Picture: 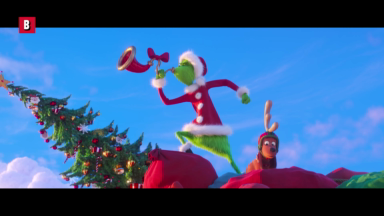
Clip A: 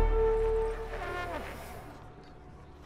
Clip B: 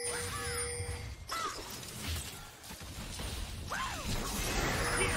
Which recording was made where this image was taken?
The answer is A